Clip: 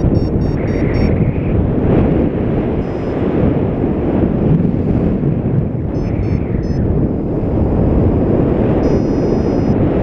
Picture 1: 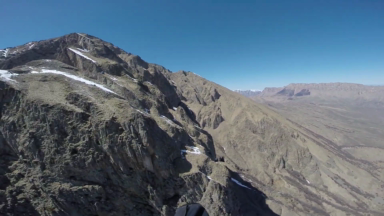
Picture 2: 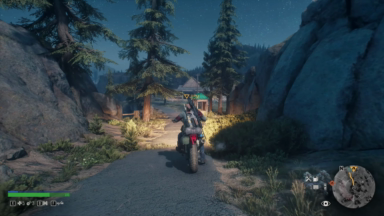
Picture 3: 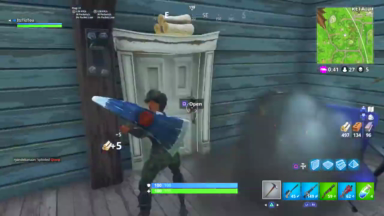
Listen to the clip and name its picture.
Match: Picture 1